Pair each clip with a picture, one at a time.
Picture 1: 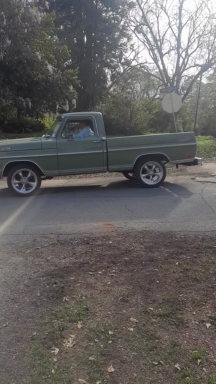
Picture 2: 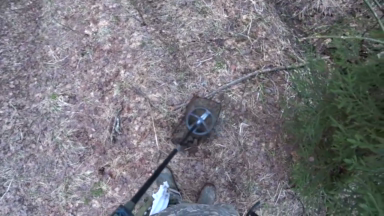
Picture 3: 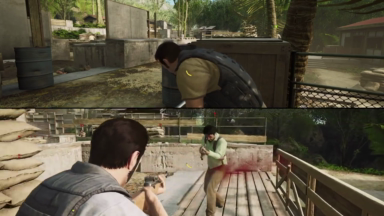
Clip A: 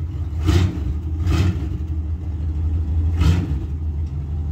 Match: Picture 1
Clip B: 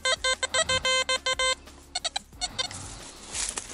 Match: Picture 2